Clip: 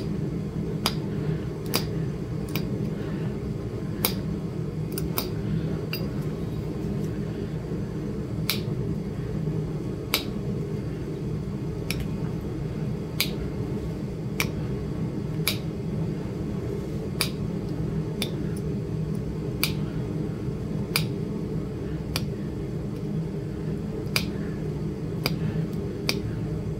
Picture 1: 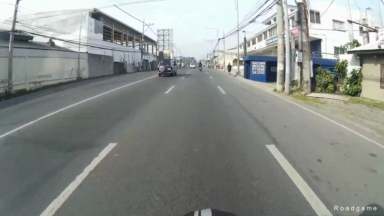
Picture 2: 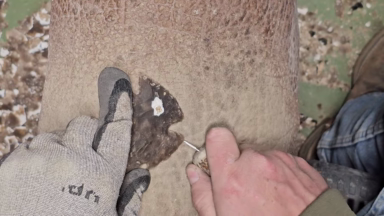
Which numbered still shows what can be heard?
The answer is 2